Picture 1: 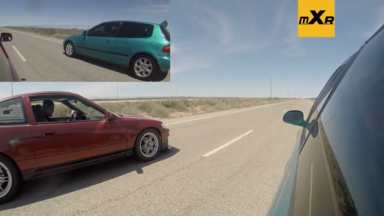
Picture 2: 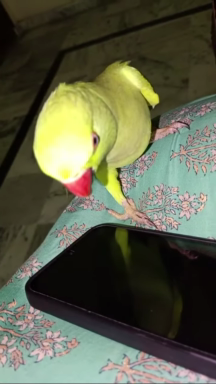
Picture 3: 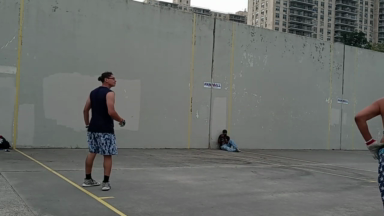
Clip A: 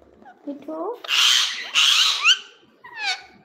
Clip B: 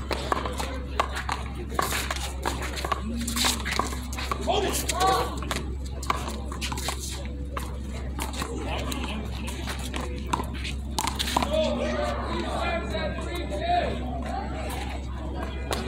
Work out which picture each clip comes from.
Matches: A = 2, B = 3